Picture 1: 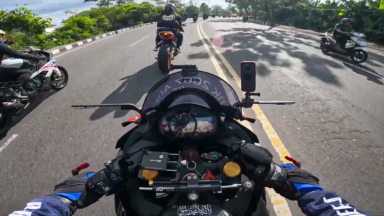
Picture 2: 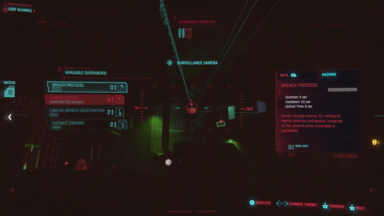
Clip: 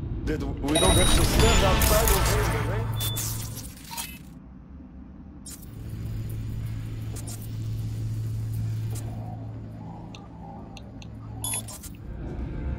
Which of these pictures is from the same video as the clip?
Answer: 2